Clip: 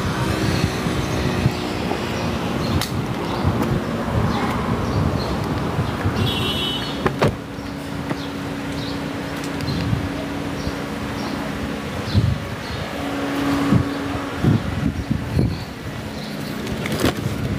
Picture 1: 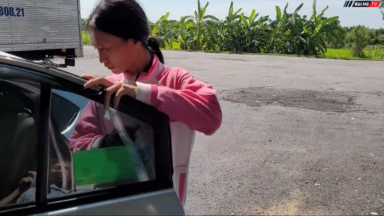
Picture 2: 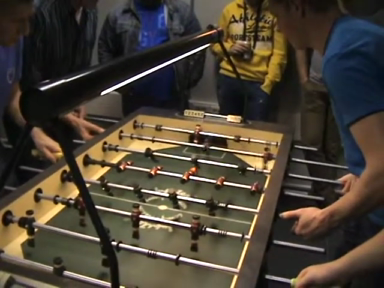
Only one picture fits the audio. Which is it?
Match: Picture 1